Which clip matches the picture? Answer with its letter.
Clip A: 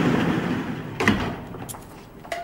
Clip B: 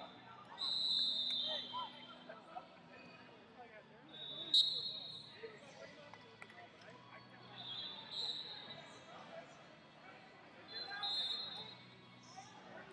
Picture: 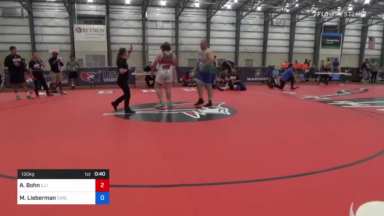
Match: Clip B